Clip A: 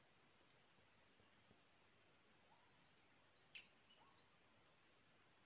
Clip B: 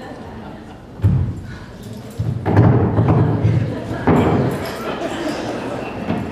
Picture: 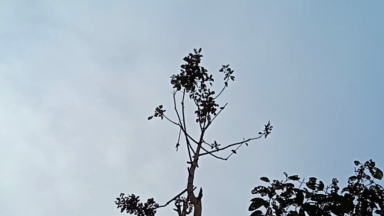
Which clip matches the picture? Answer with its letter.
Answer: A